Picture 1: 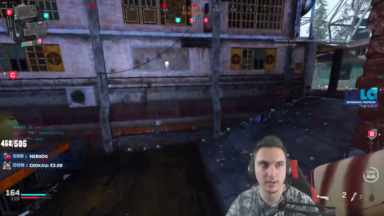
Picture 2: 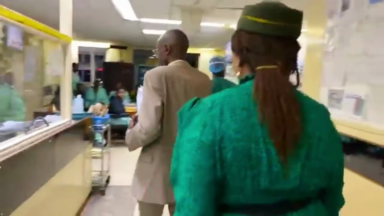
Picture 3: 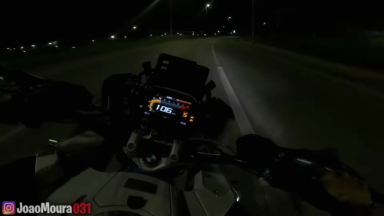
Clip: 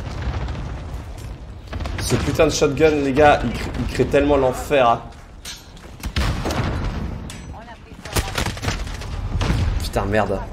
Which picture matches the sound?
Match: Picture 1